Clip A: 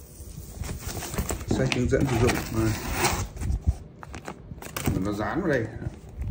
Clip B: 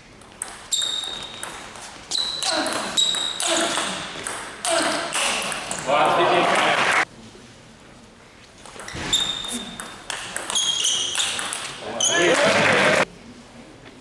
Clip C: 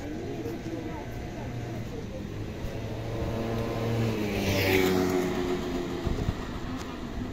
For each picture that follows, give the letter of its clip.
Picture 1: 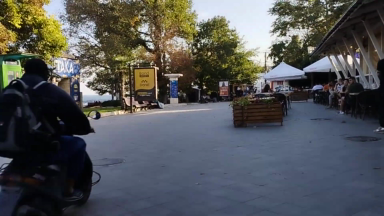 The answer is C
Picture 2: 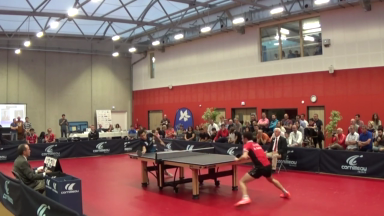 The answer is B